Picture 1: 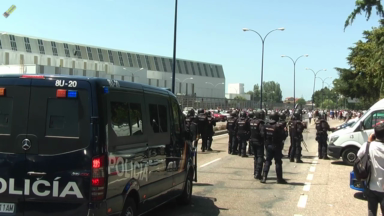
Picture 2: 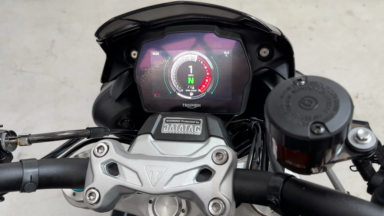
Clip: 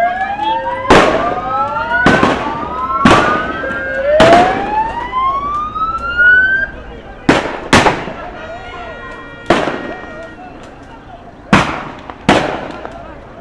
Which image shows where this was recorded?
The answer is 1